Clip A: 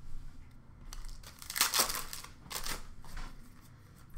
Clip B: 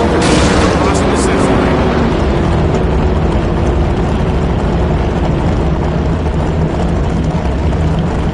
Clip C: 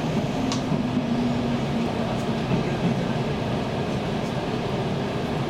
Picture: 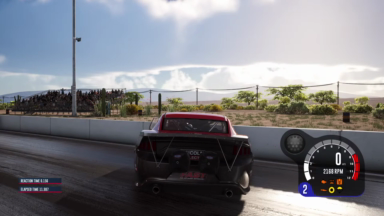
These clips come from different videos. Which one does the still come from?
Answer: B